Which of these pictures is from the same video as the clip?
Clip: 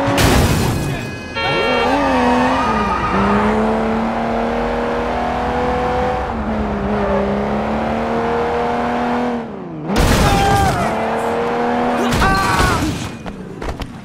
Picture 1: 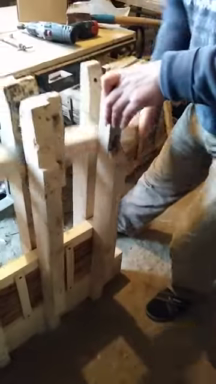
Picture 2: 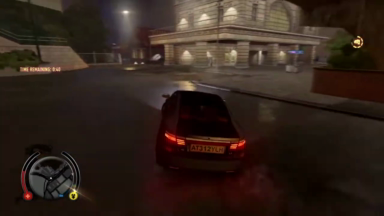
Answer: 2